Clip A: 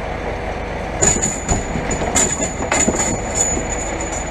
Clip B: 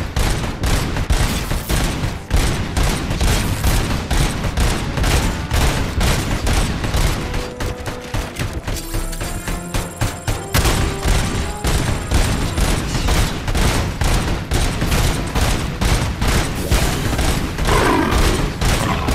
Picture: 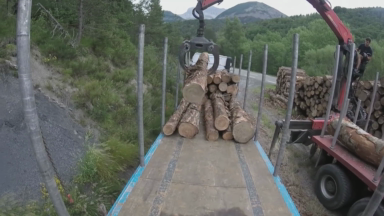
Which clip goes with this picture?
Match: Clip A